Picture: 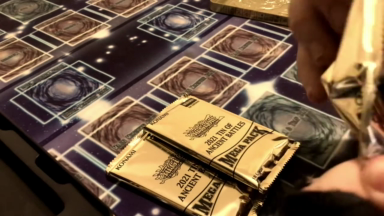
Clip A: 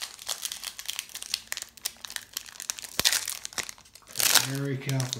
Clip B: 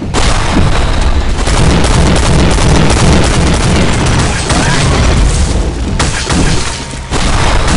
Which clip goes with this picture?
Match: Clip A